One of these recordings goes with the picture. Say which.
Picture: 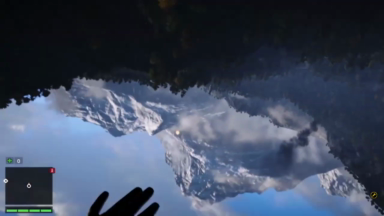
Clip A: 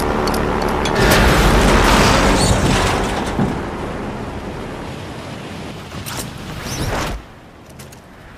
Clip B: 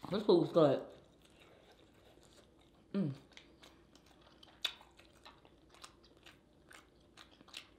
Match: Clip A